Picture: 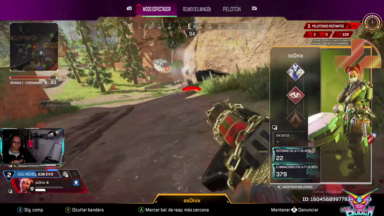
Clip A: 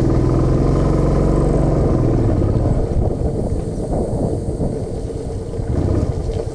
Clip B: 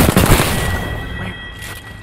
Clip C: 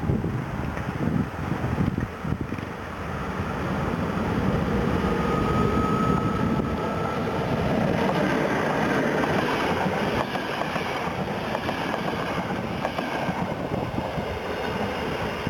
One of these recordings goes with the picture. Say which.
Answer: B